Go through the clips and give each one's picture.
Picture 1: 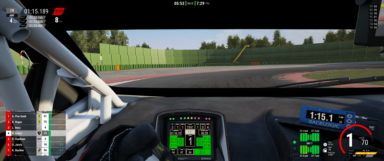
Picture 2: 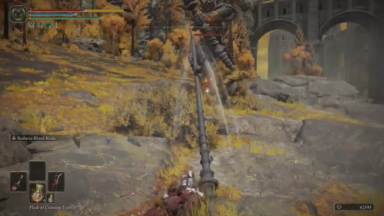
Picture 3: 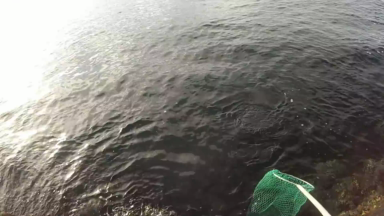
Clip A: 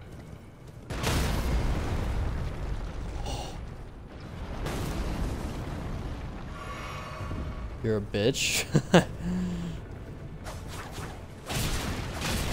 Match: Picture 2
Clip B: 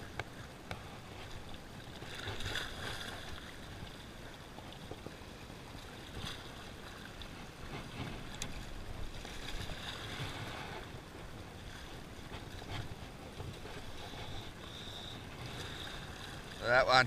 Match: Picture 3